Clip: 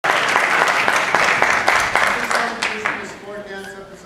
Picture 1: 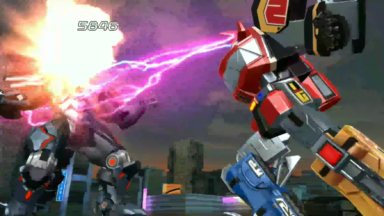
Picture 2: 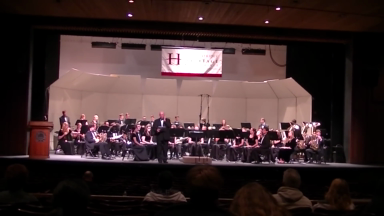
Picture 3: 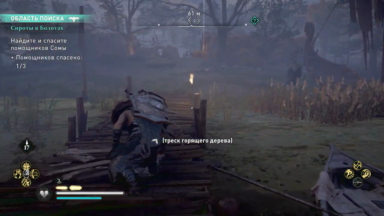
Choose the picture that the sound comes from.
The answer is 2